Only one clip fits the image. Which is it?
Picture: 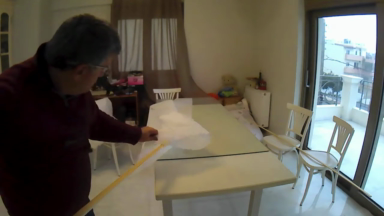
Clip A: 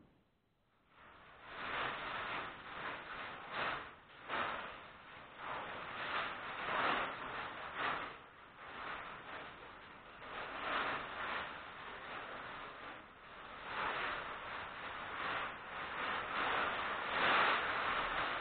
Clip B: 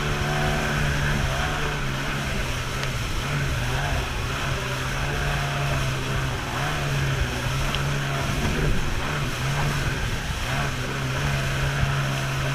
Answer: A